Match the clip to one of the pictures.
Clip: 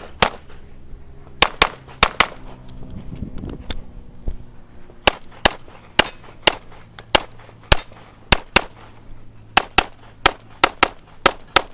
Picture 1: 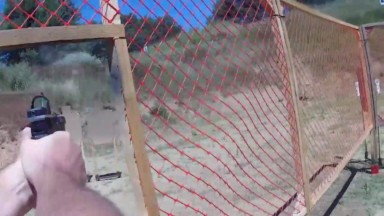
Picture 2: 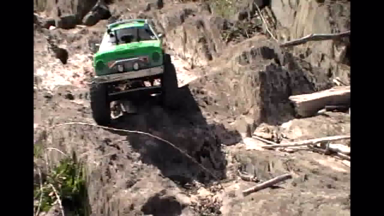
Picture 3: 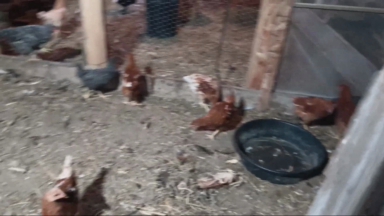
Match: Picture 1